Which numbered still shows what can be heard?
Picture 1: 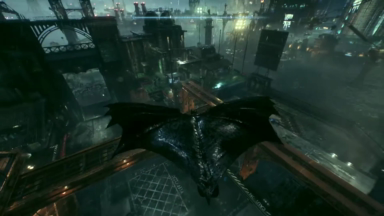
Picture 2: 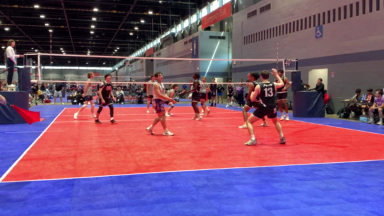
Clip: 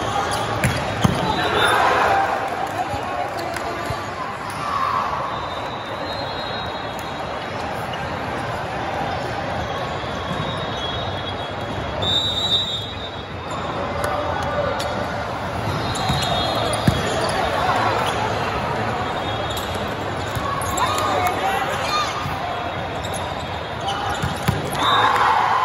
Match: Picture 2